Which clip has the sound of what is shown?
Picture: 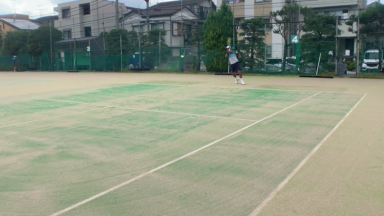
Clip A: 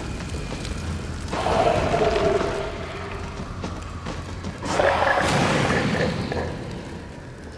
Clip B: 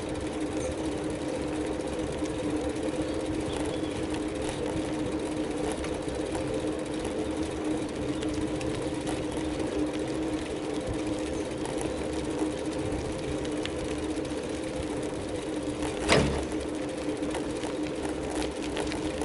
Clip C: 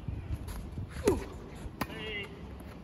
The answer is C